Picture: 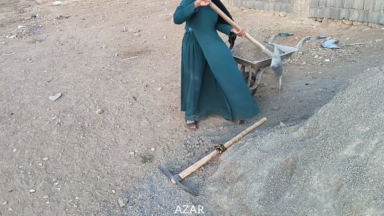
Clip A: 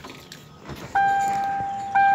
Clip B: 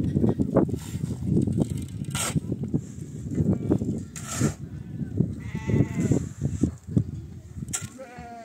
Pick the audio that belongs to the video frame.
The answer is B